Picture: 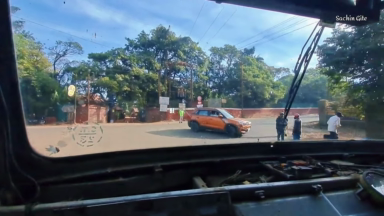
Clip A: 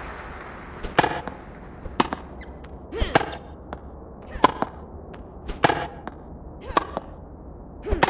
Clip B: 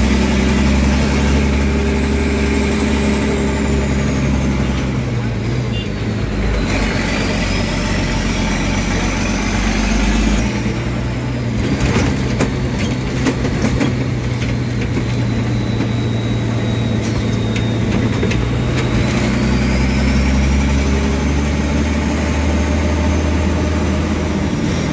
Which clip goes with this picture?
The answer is B